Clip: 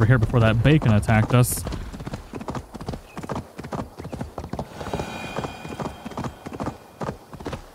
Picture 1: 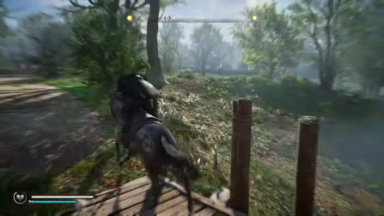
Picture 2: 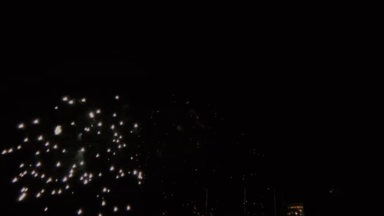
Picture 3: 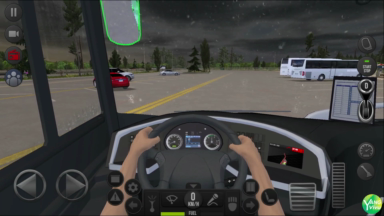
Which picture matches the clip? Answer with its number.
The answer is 1